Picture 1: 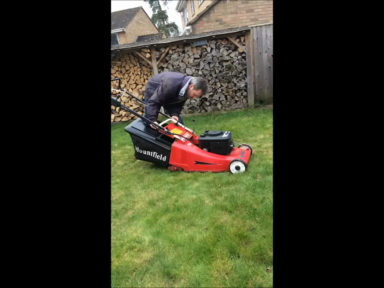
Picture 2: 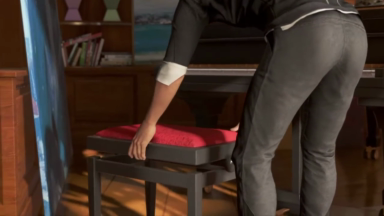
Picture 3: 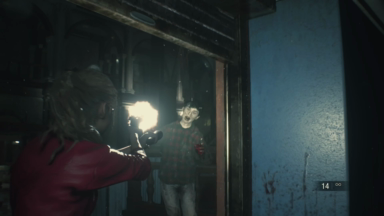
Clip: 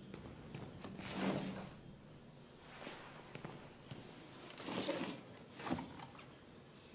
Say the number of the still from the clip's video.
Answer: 2